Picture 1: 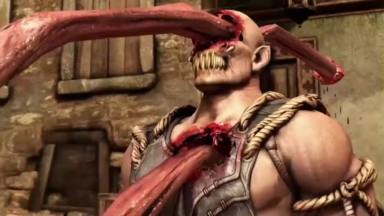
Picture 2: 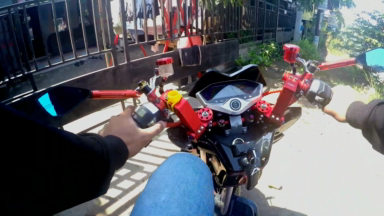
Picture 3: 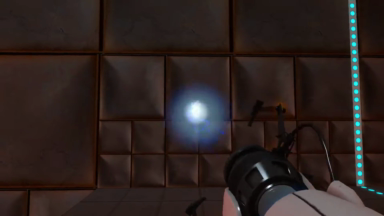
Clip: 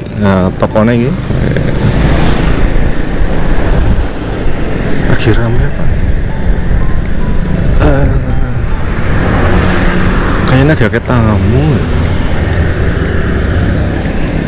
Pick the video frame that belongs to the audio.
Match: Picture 2